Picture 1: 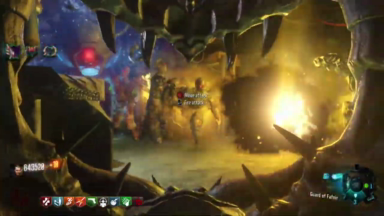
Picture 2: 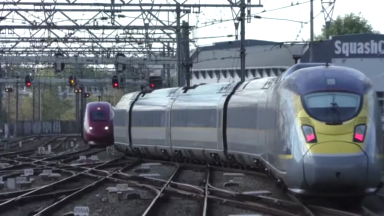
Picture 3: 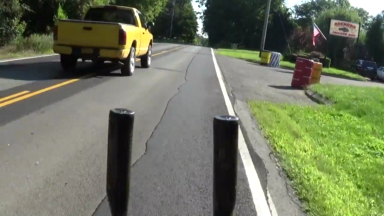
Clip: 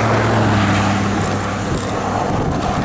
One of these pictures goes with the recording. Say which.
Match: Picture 3